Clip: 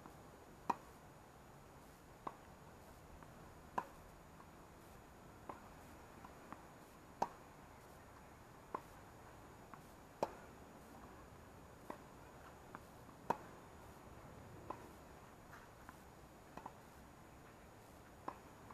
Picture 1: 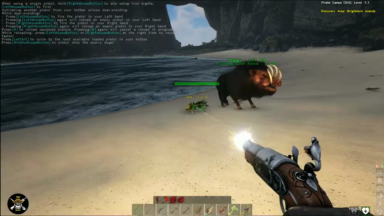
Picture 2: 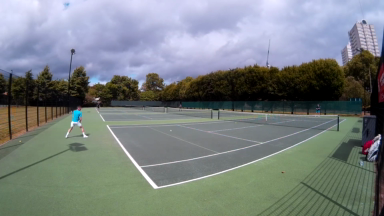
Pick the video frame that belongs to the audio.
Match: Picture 2